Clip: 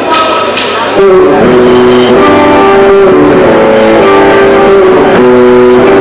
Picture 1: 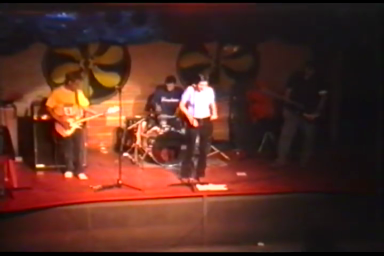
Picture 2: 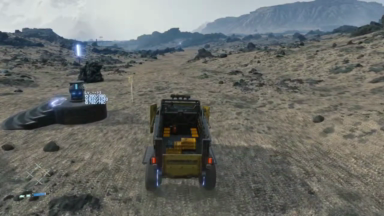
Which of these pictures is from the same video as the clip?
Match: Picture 1